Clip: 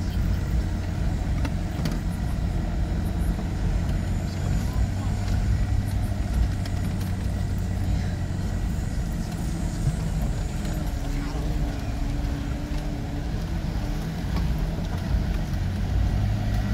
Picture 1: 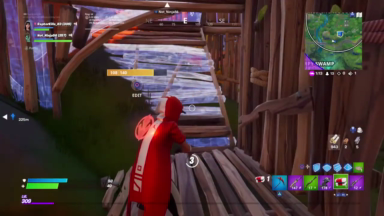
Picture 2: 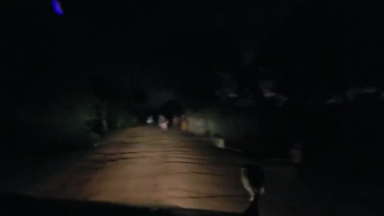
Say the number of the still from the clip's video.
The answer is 2